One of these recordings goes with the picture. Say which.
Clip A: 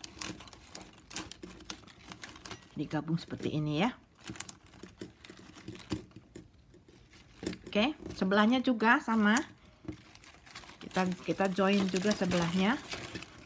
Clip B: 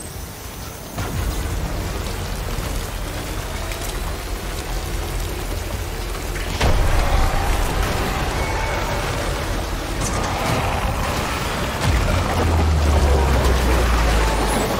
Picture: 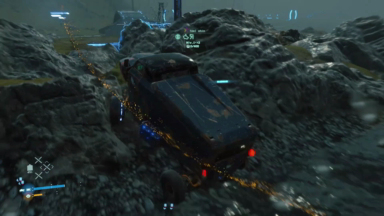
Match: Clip B